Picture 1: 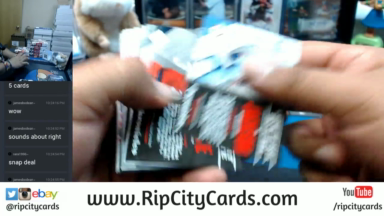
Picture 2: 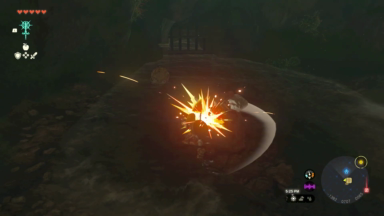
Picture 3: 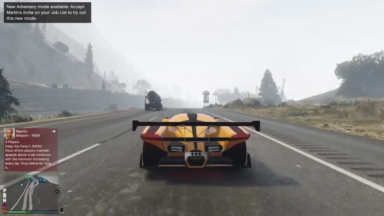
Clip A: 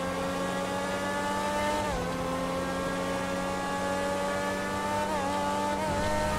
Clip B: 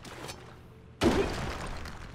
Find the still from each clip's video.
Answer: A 3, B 2